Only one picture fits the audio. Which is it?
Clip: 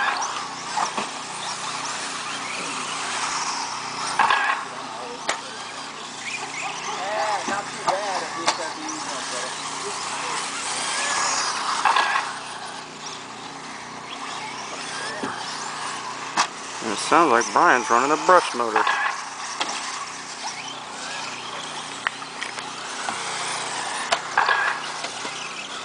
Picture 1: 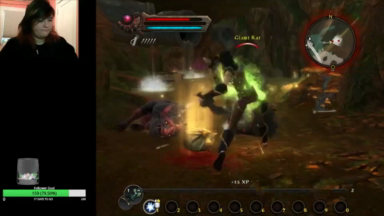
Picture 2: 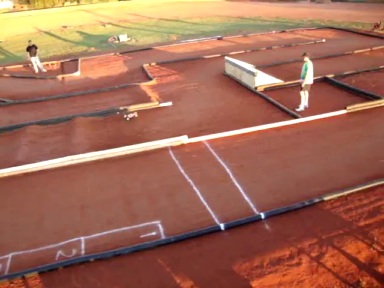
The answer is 2